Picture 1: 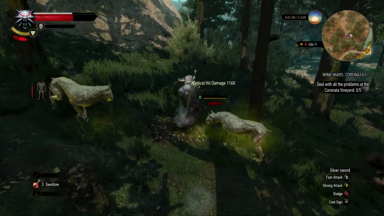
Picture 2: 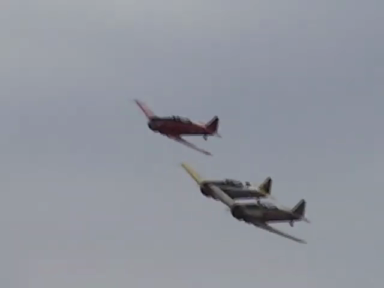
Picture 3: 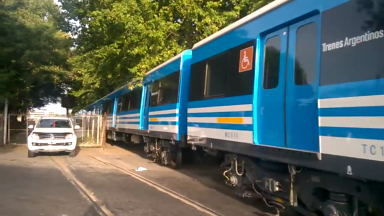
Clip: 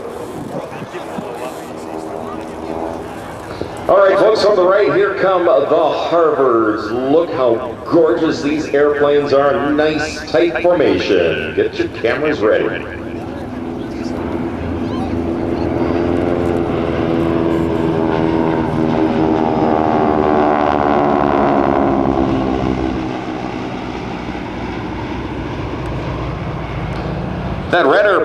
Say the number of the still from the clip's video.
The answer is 2